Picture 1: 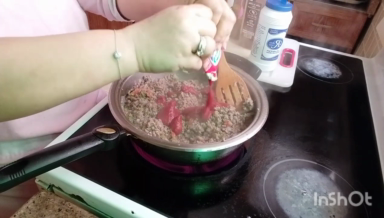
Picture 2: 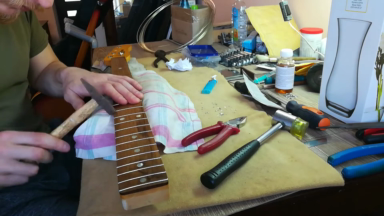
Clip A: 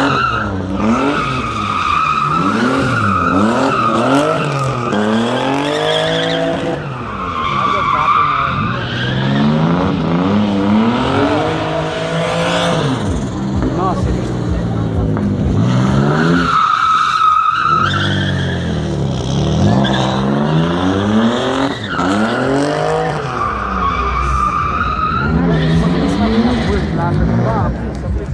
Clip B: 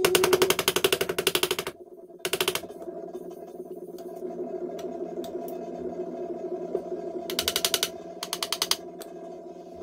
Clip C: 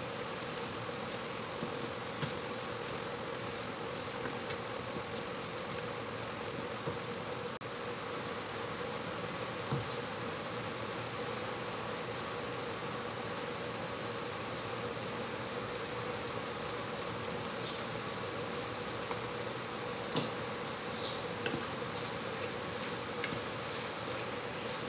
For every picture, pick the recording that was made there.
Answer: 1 C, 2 B